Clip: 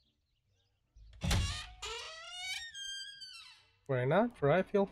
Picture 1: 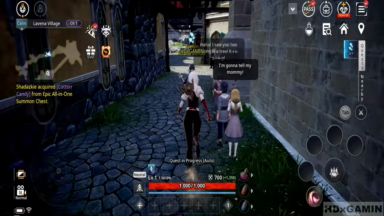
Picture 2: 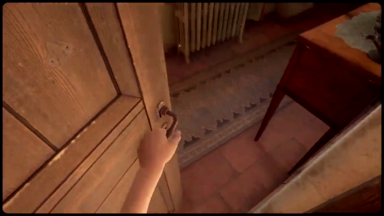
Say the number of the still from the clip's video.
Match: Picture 2